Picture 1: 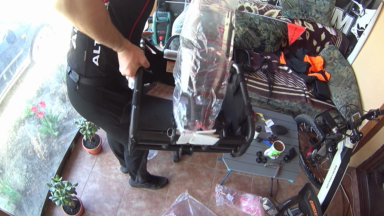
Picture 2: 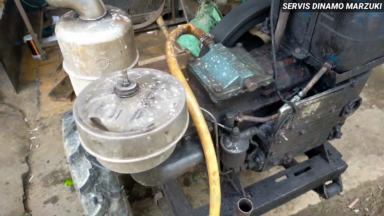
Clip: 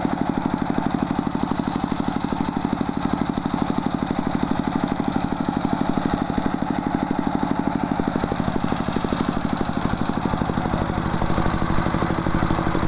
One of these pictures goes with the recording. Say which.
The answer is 2